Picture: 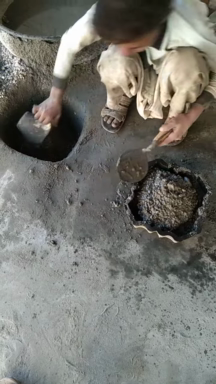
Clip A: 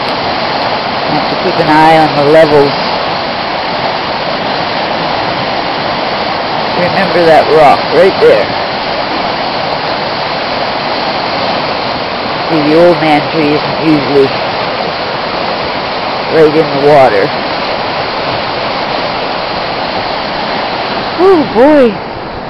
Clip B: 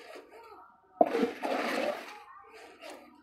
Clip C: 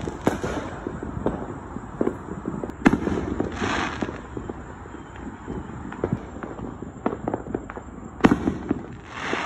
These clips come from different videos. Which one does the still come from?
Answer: B